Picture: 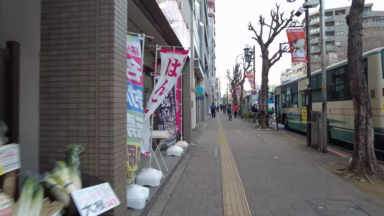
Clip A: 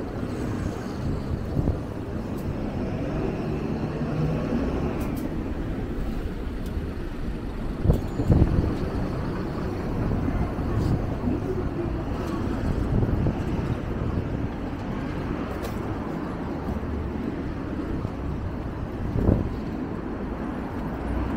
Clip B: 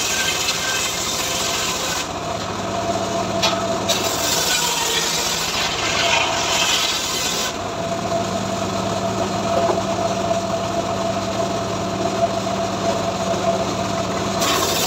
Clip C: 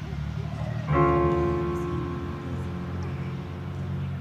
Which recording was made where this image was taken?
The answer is A